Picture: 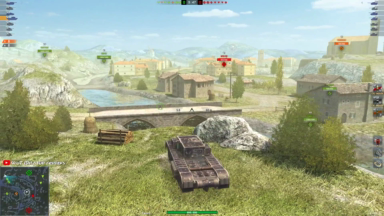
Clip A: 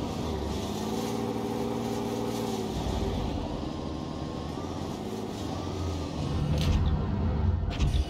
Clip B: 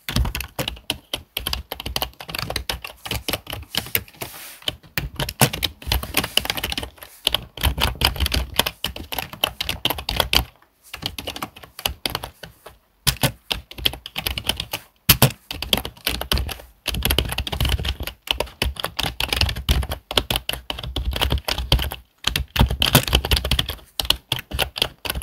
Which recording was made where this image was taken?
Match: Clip A